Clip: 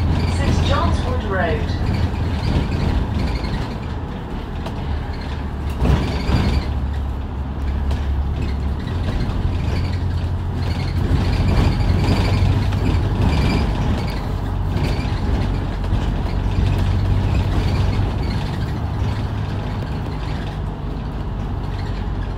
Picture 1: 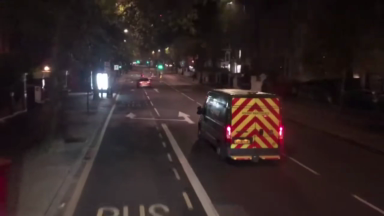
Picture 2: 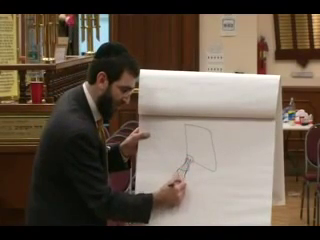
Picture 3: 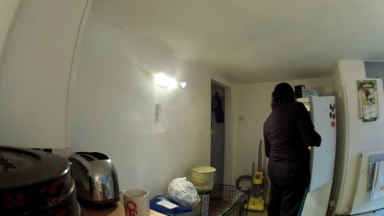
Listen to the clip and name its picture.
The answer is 1